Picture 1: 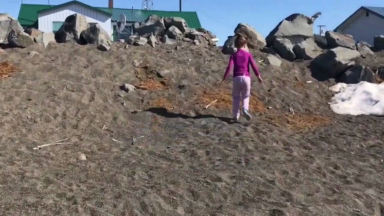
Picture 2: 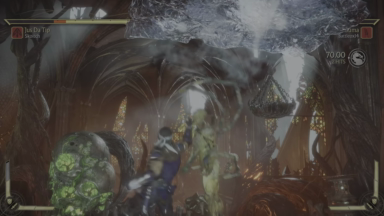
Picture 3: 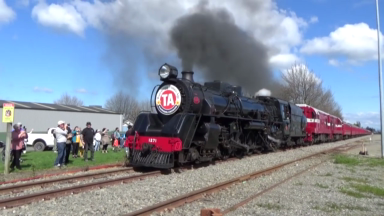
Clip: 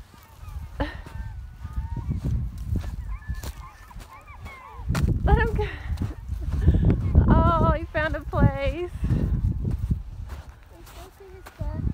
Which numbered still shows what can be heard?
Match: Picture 1